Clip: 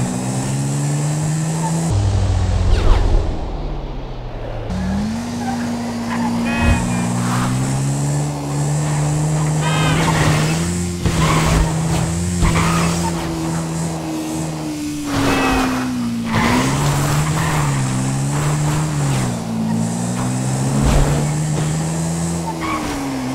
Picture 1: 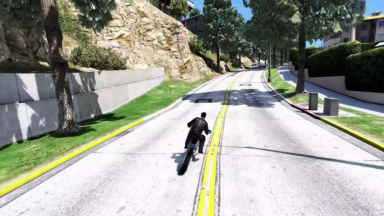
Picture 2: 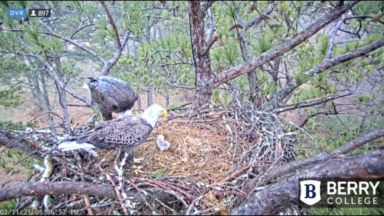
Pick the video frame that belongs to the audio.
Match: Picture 1